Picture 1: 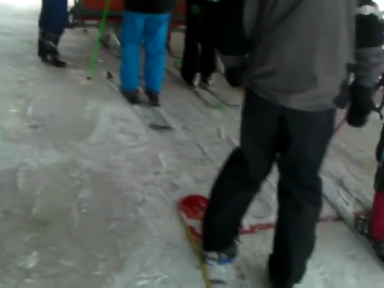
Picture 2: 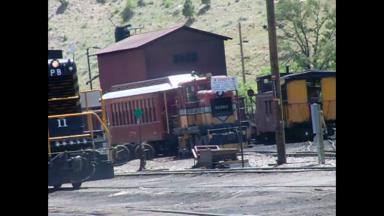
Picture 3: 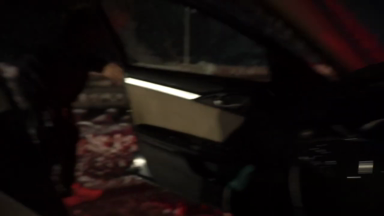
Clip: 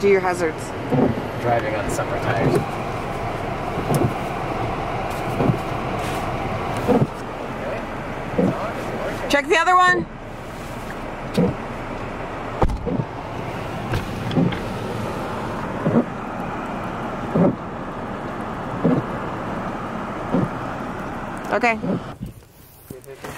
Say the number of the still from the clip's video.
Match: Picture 3